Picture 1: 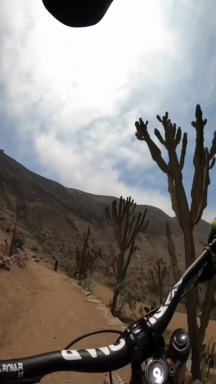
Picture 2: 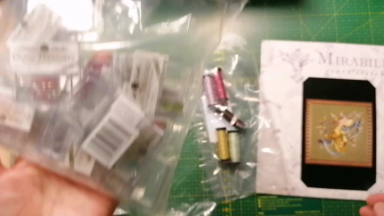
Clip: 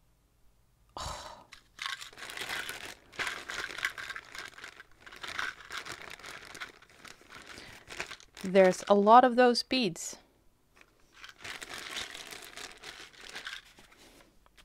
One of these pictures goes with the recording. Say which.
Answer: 2